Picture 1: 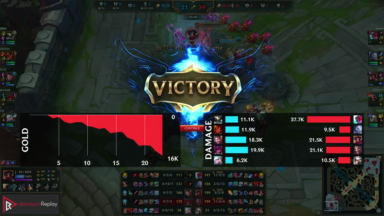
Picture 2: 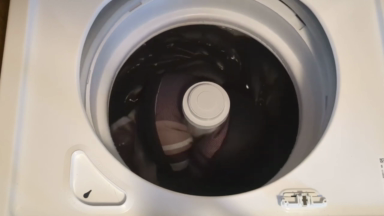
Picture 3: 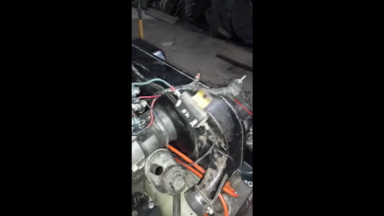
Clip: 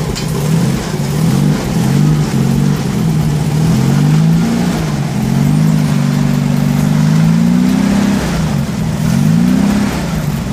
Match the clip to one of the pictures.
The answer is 3